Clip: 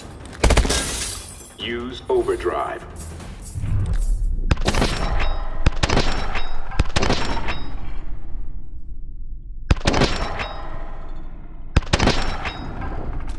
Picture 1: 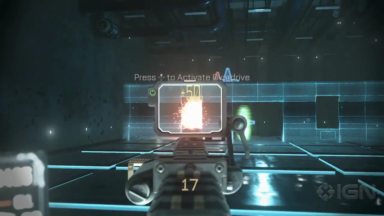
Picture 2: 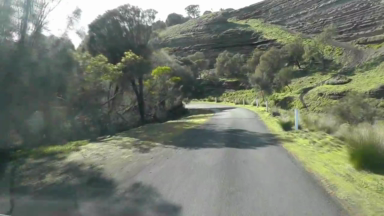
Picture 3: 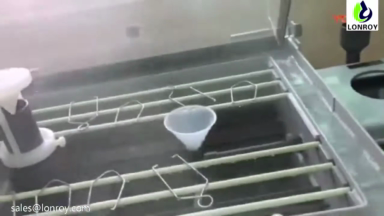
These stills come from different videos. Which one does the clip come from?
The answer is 1